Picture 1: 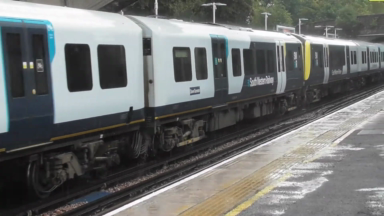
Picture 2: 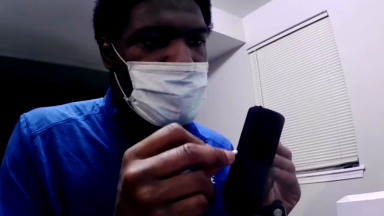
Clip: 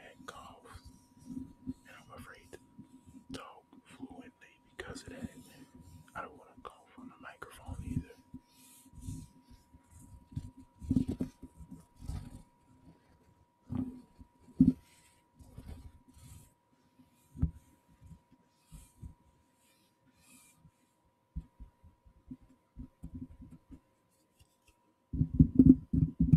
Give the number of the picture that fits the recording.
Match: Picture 2